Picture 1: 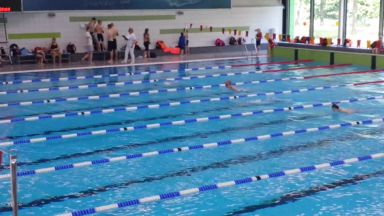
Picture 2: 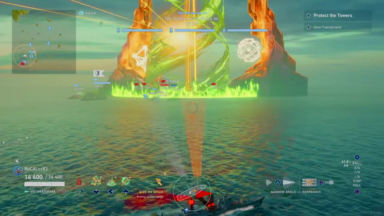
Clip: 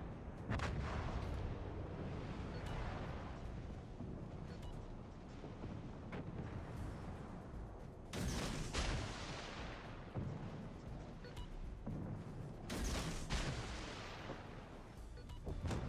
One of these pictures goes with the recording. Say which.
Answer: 2